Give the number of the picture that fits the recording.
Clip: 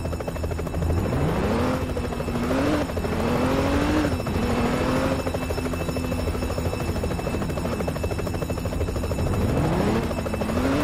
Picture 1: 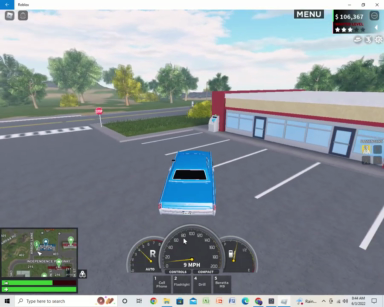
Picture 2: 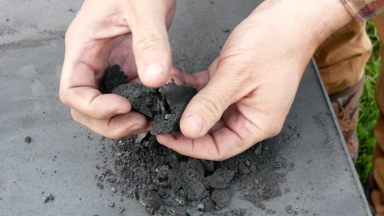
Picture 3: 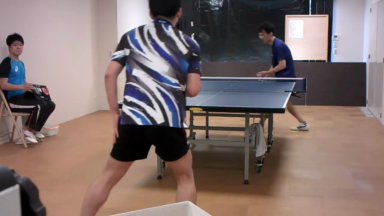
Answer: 1